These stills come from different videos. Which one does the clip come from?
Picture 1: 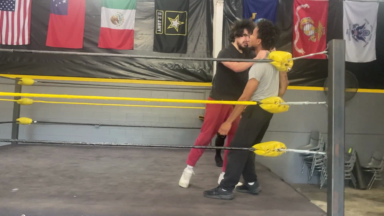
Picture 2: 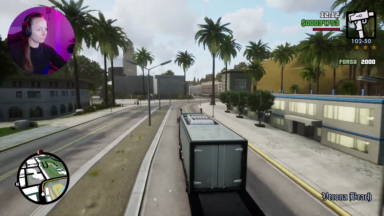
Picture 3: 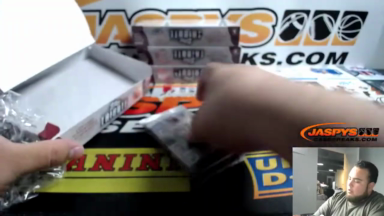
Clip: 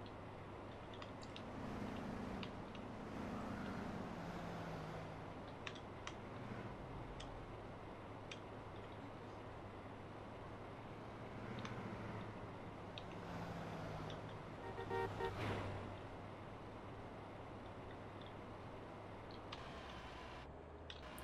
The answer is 2